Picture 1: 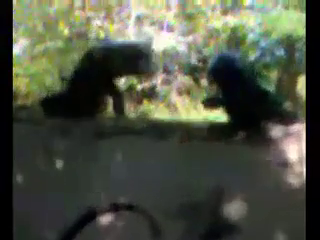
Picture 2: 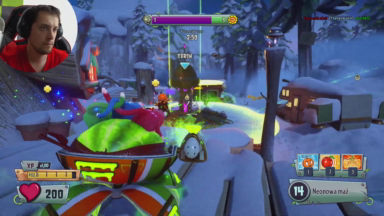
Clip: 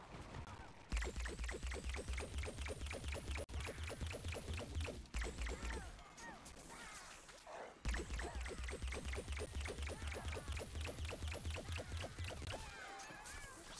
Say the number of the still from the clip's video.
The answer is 2